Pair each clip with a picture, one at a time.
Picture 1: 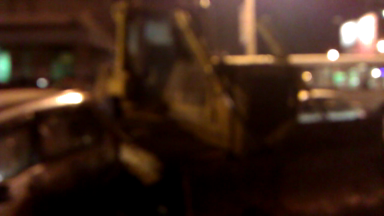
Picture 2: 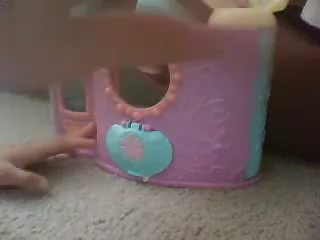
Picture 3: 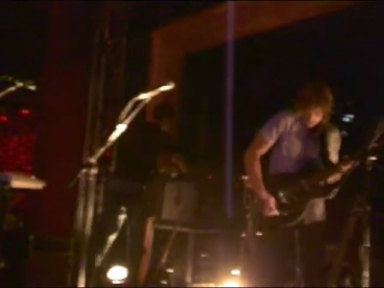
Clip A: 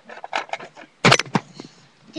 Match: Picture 2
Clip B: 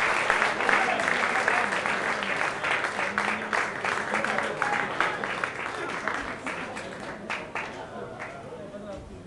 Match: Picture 3